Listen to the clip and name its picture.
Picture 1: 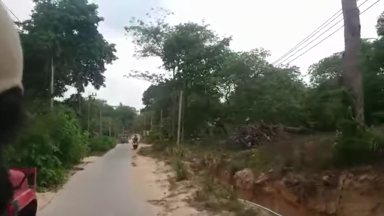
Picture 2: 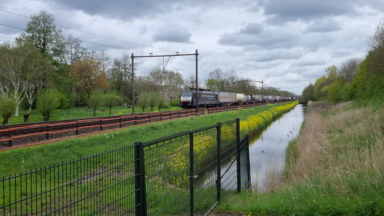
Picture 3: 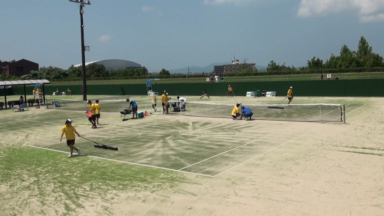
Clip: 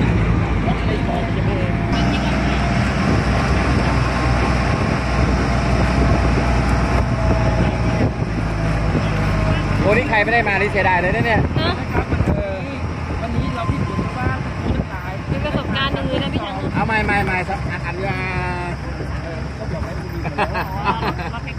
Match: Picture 1